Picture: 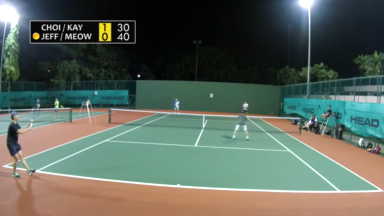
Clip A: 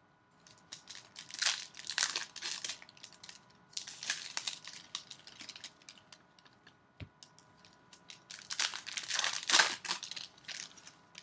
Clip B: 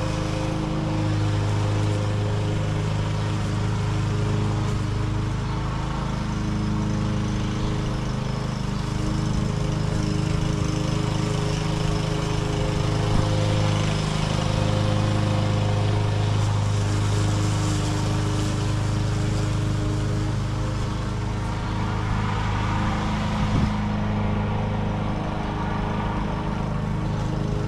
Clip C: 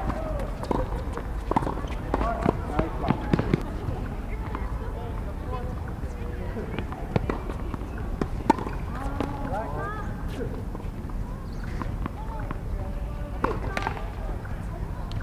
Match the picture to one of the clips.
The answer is C